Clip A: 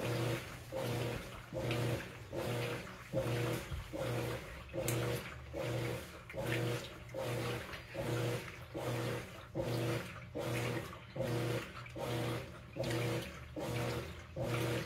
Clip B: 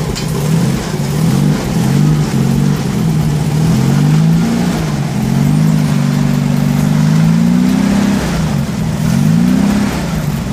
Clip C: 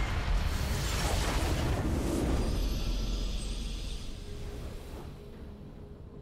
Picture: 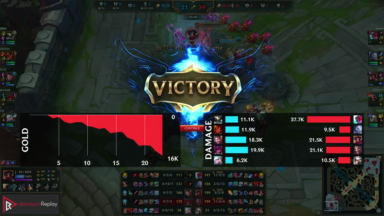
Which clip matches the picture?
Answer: C